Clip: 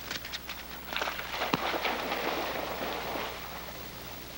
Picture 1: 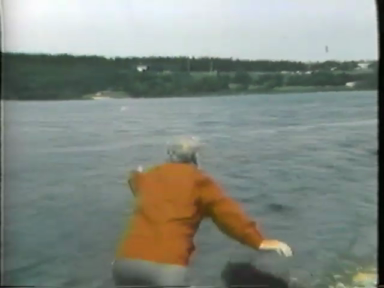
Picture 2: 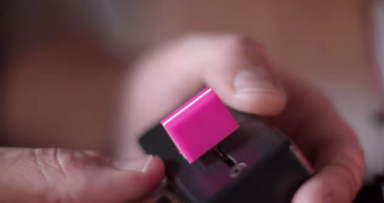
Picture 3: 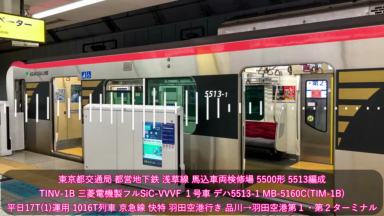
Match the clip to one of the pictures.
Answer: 1